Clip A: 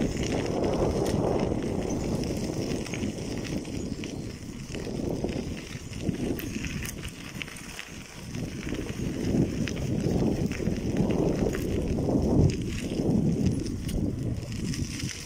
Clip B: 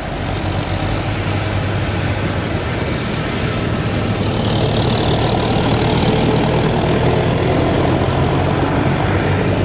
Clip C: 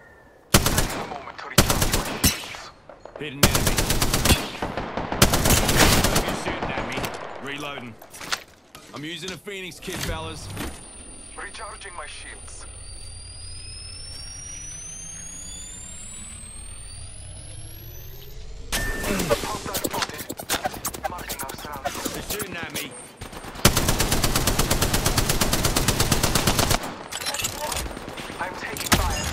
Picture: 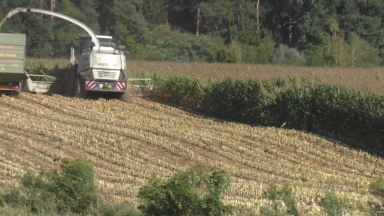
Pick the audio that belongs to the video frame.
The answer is B